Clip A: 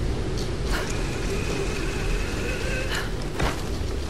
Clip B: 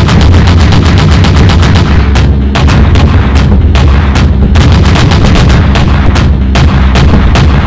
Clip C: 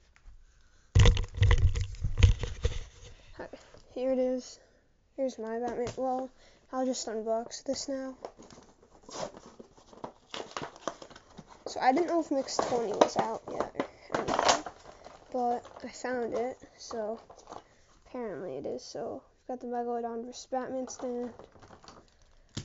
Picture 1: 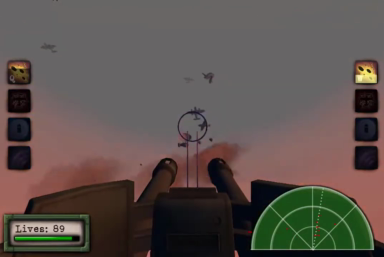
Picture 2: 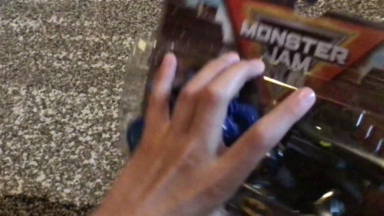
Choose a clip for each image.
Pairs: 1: B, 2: C